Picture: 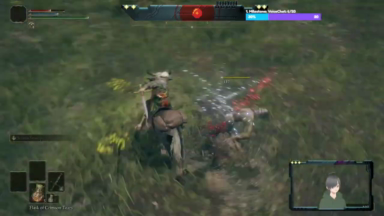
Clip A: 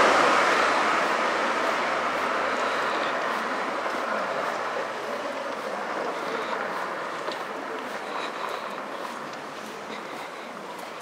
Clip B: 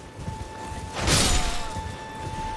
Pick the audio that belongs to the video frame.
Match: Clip B